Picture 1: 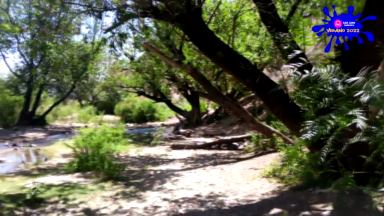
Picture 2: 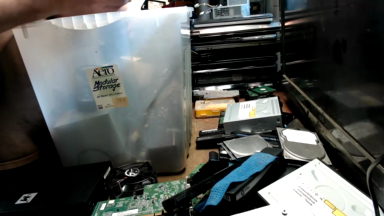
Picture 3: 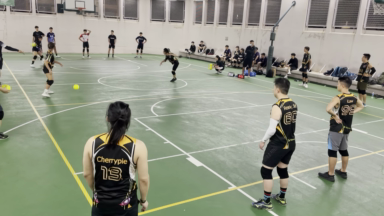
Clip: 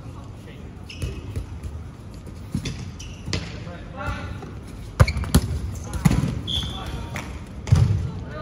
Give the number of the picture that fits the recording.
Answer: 3